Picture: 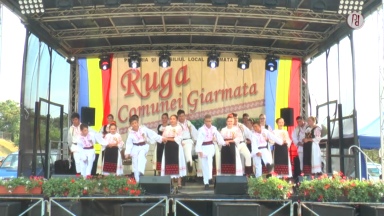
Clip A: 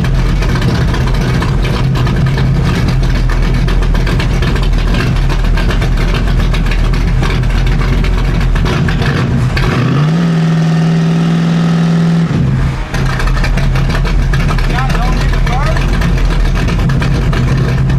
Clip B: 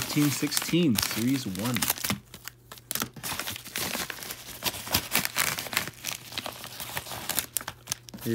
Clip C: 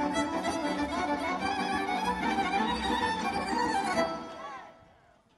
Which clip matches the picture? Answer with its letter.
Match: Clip C